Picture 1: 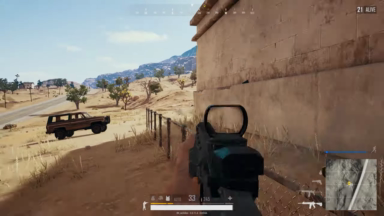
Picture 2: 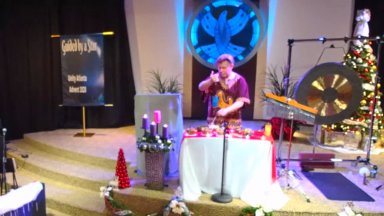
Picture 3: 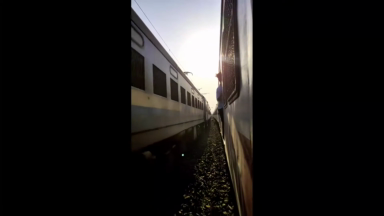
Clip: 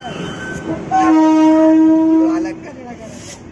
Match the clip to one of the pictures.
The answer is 3